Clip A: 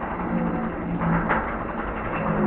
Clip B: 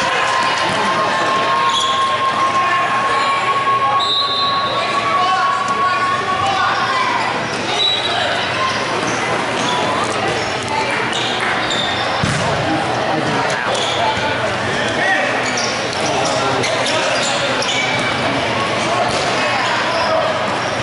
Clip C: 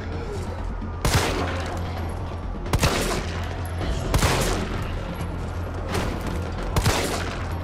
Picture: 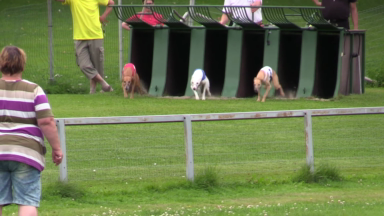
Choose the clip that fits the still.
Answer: A